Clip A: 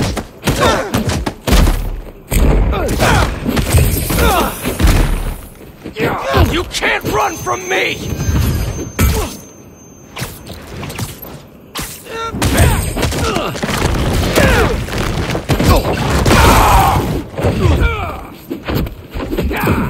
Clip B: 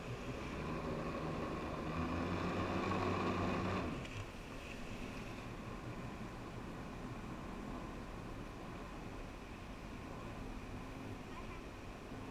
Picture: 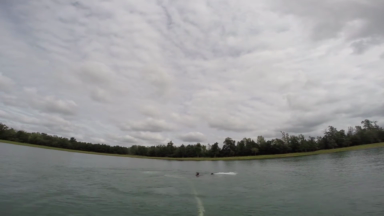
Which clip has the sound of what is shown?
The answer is B